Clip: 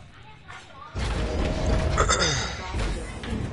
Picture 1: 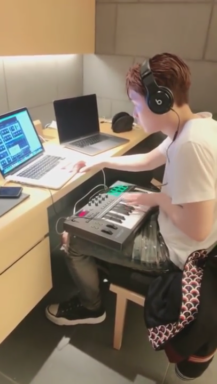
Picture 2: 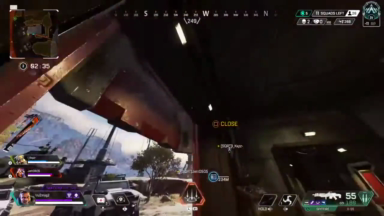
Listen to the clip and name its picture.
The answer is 2